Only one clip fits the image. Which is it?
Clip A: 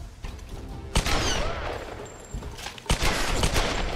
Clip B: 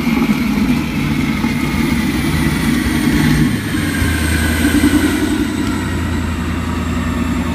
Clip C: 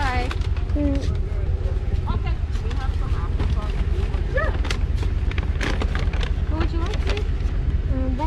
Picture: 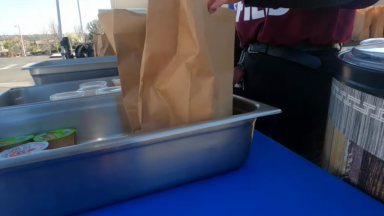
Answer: C